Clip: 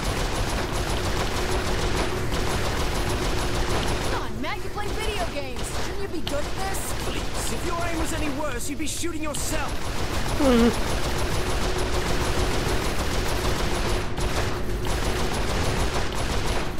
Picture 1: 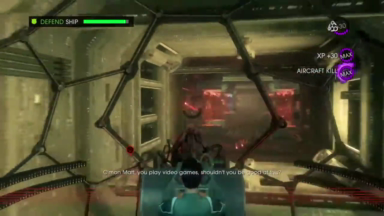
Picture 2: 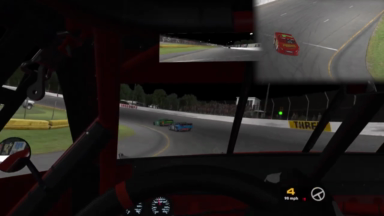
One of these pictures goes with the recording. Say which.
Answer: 1